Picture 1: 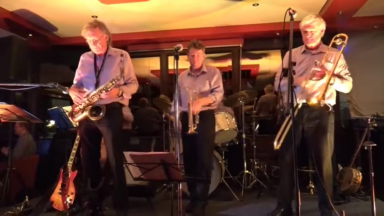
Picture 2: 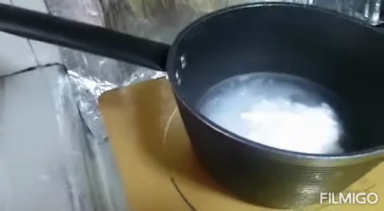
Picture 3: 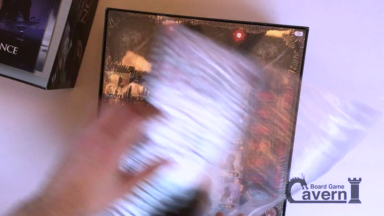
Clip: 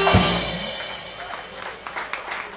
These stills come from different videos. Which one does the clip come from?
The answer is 1